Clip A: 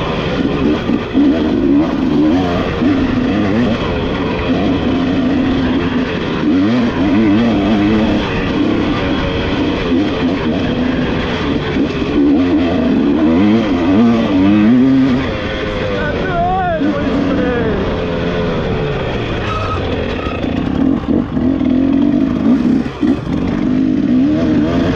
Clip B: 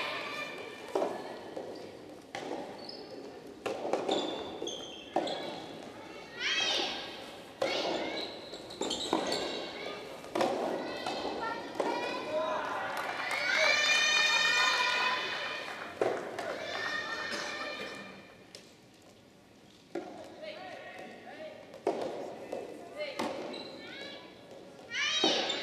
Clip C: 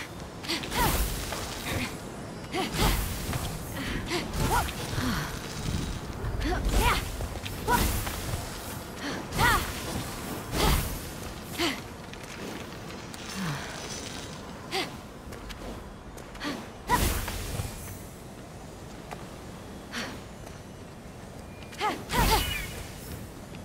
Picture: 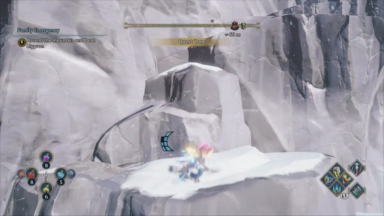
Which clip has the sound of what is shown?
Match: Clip C